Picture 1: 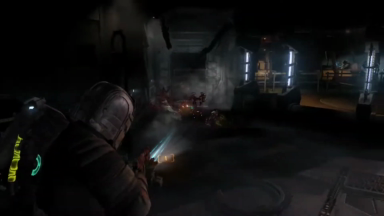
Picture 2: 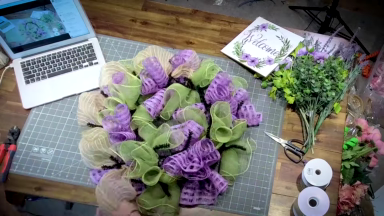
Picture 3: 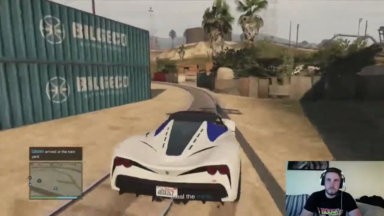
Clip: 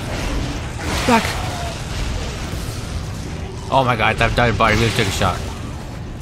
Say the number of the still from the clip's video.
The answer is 1